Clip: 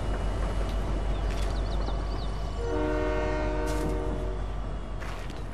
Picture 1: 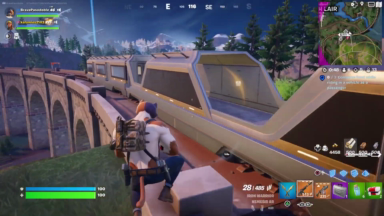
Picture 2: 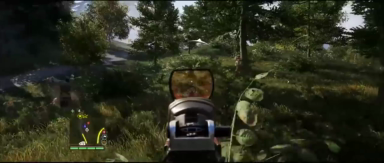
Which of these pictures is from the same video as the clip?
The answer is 1